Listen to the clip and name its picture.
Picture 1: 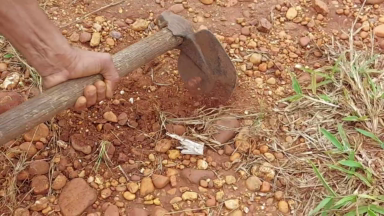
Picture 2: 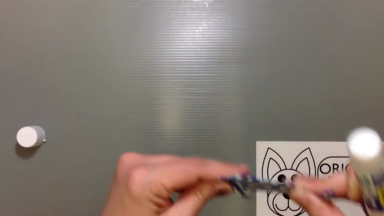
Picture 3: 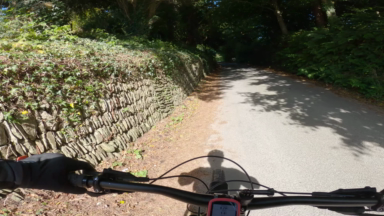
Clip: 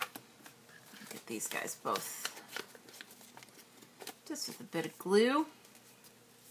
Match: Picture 2